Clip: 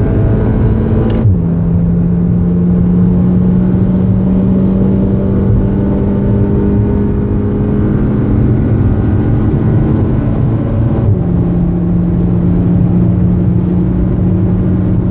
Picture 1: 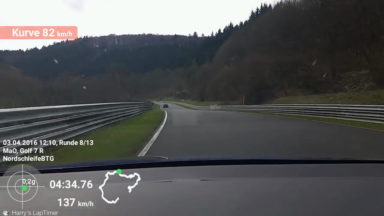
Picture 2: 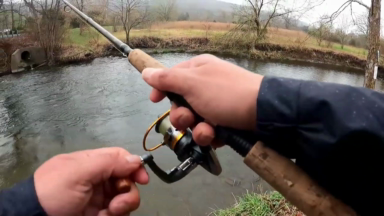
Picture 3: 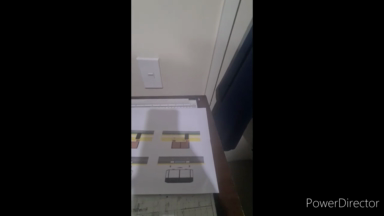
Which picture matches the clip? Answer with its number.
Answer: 1